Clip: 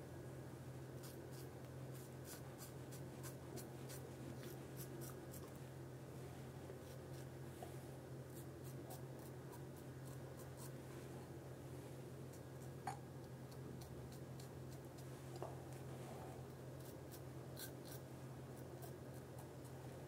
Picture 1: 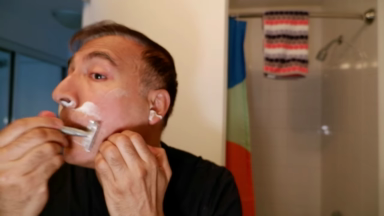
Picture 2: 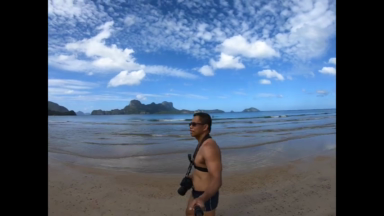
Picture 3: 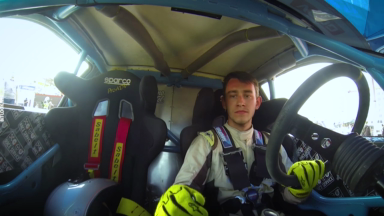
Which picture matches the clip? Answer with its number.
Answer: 1